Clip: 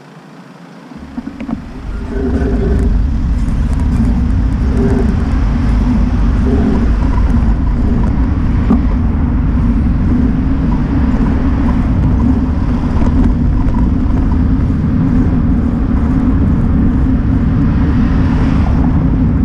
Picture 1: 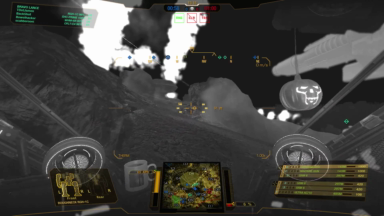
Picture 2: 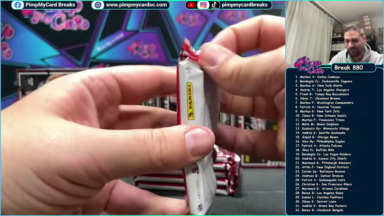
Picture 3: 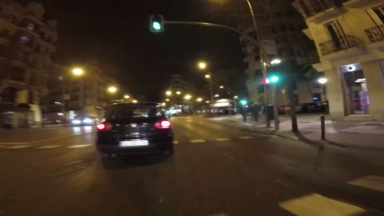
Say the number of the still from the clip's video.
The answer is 3